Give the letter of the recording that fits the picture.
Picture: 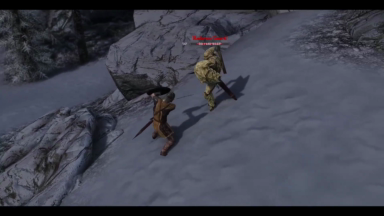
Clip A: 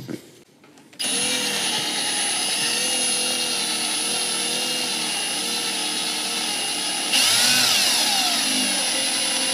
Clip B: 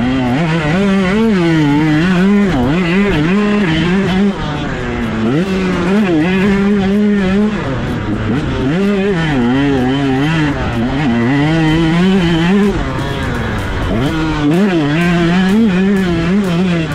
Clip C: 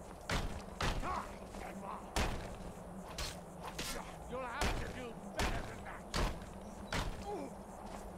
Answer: C